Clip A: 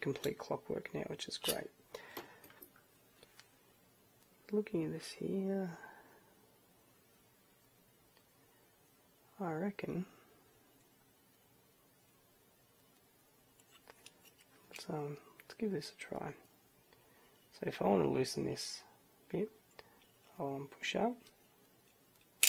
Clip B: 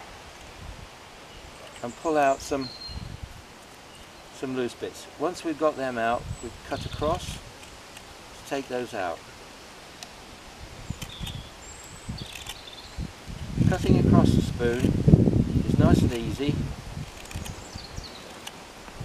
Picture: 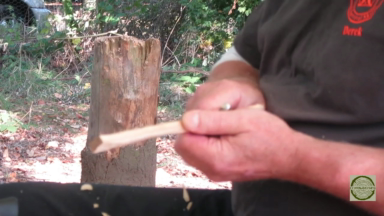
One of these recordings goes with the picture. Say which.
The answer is B